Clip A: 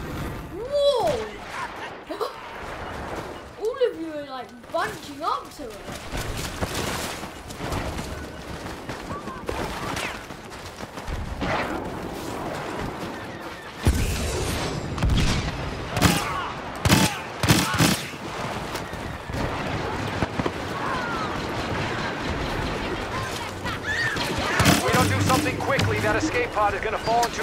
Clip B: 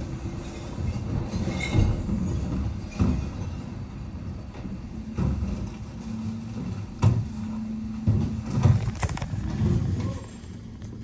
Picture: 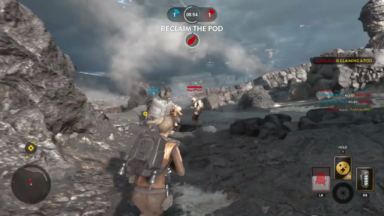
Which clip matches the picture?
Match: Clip A